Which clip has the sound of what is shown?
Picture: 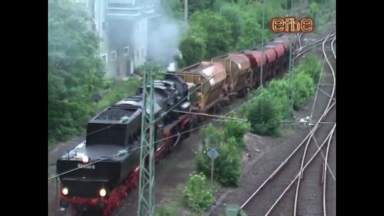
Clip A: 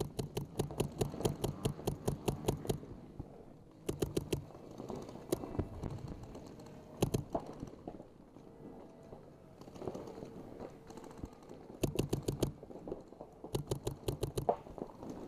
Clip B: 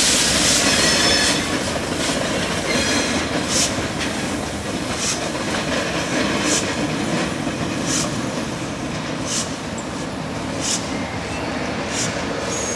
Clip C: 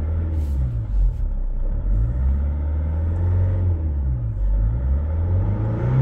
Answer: B